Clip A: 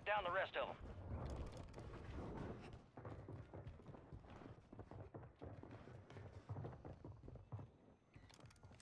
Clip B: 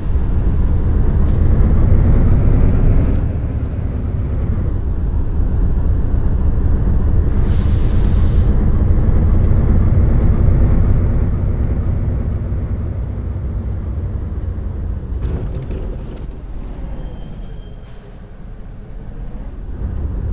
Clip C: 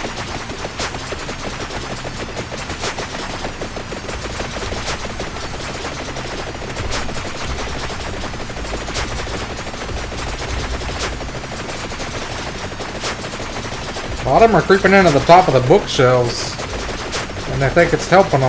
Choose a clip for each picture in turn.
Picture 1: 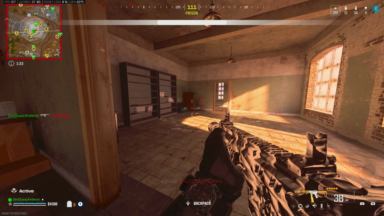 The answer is A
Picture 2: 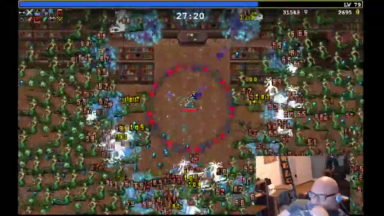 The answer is C